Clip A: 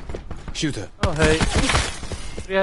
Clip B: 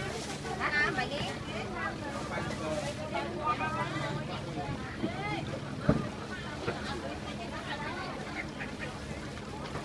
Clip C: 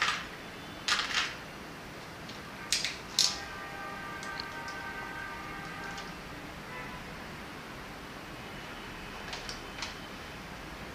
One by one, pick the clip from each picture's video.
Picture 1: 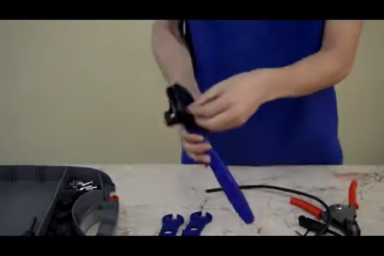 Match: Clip C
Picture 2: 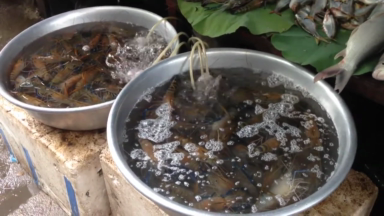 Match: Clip B